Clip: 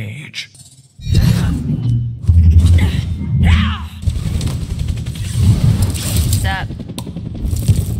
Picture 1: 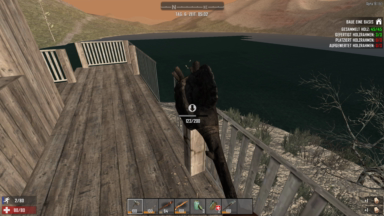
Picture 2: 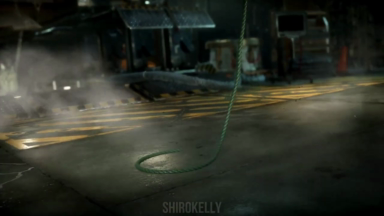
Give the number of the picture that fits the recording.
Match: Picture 2